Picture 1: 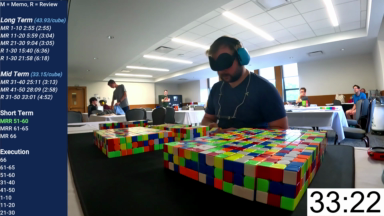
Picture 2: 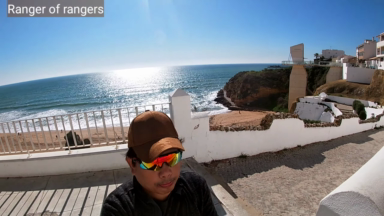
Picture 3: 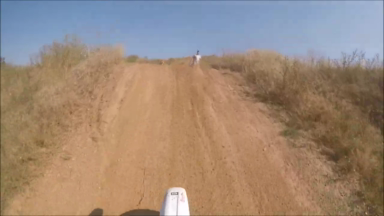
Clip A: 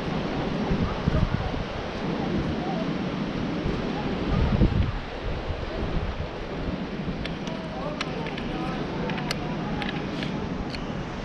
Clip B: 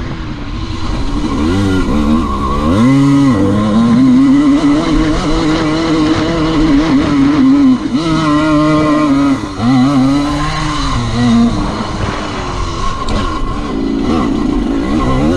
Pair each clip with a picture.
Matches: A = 2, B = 3